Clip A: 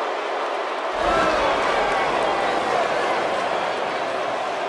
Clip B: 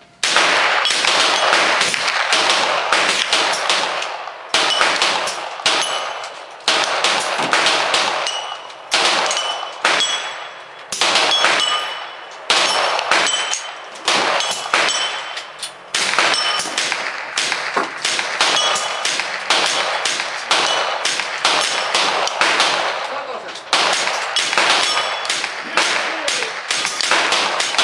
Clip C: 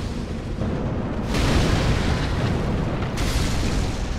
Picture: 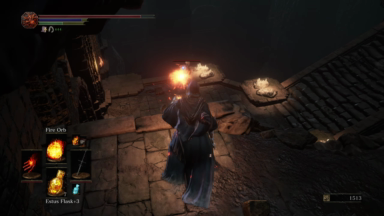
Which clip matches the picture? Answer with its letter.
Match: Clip C